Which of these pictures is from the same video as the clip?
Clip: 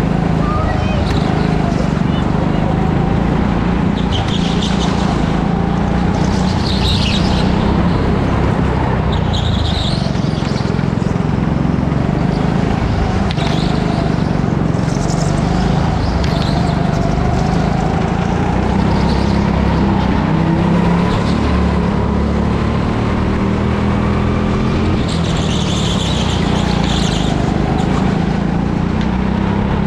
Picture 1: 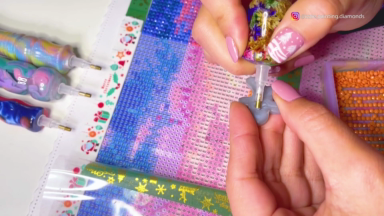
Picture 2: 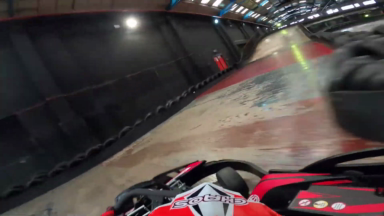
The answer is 2